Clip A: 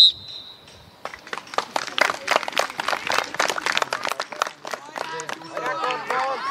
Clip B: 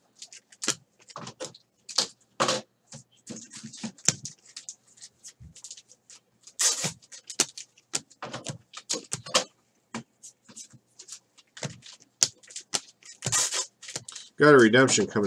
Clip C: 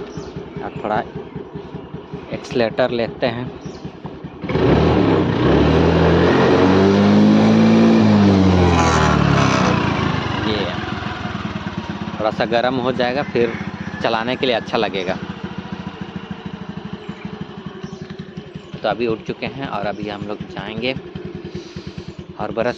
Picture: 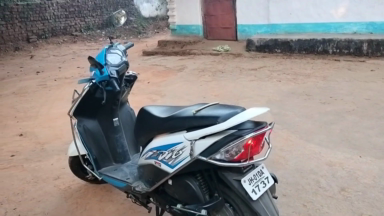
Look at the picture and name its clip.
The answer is C